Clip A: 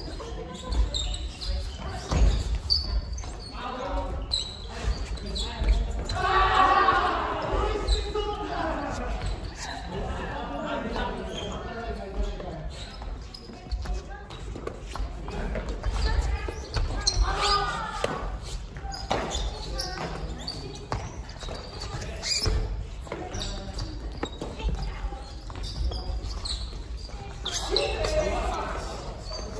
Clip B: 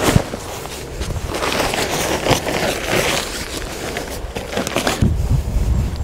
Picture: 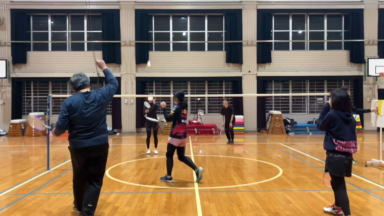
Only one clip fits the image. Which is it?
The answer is A